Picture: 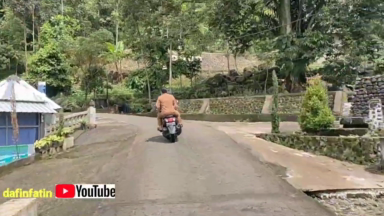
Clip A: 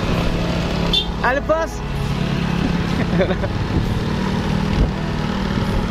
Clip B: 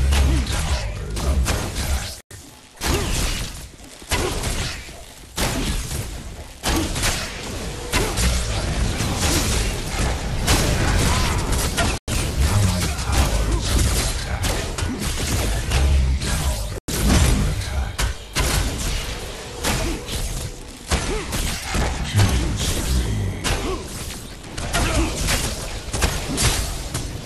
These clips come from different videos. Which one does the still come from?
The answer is A